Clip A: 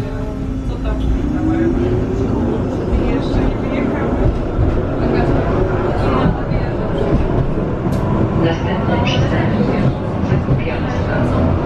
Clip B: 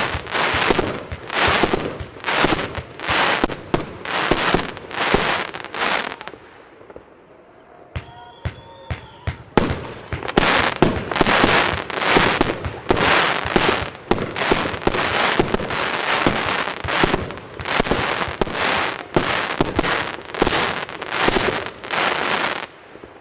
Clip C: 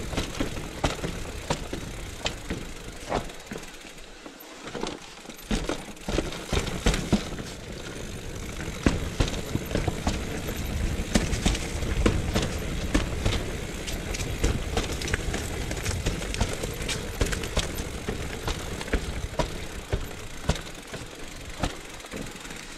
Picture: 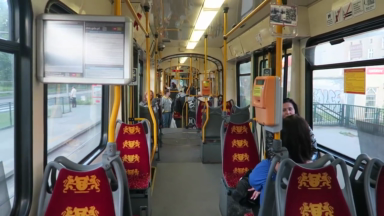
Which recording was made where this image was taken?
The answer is A